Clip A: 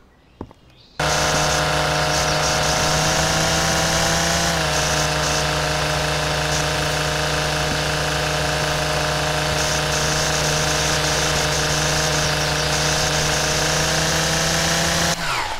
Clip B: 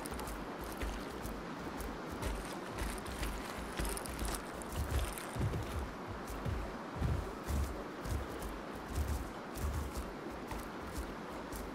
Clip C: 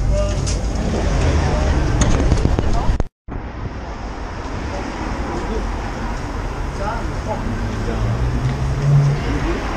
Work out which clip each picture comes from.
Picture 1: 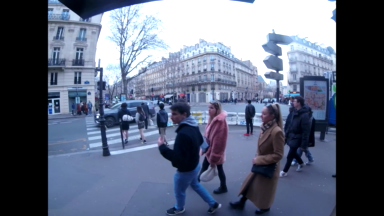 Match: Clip C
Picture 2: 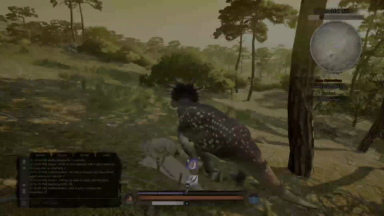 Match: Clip B